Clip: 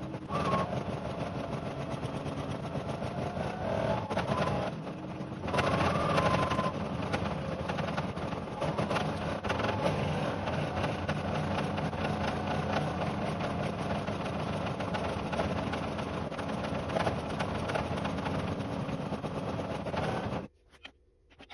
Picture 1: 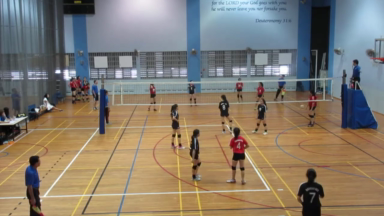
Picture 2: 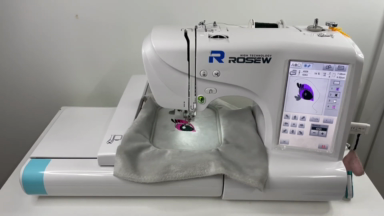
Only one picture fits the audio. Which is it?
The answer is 2